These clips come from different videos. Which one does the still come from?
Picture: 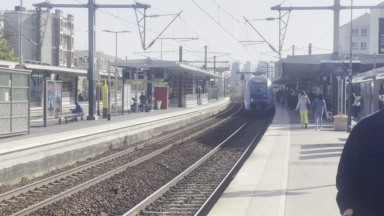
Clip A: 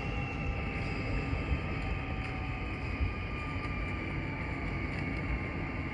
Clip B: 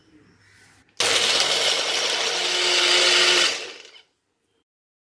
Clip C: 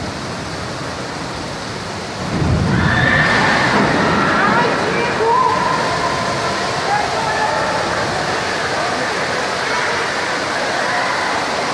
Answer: A